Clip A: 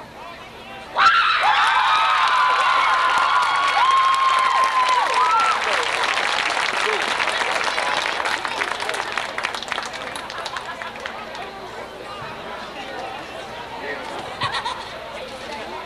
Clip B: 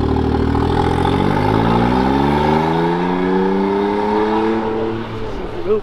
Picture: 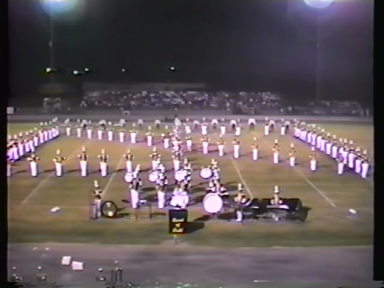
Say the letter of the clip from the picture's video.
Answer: A